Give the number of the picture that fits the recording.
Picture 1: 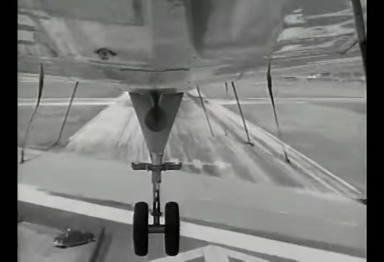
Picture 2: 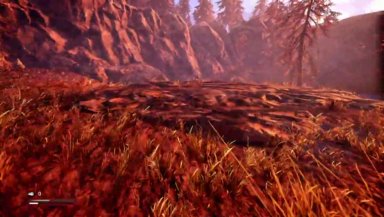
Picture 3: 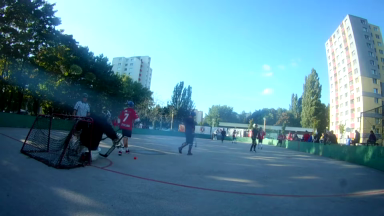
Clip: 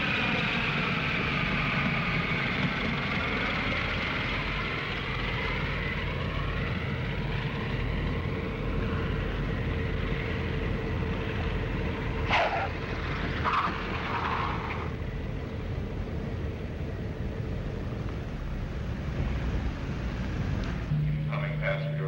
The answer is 1